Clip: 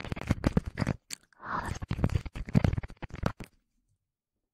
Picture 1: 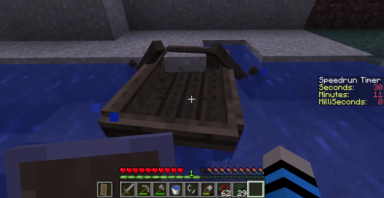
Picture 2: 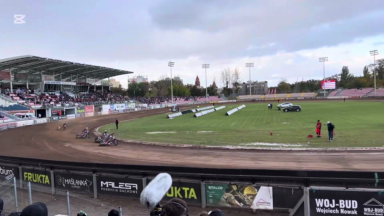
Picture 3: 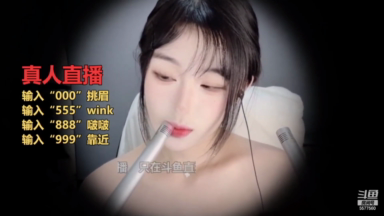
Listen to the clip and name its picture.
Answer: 3